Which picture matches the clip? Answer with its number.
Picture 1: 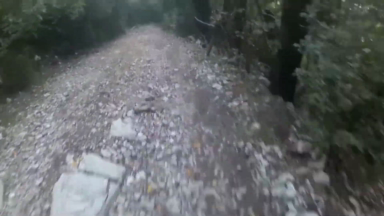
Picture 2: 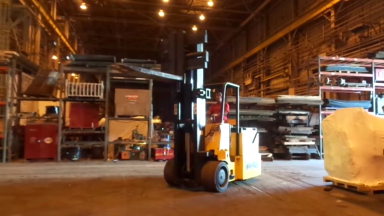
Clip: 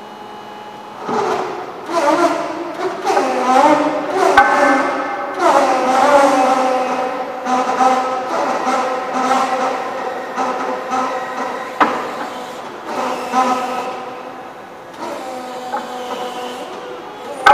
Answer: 2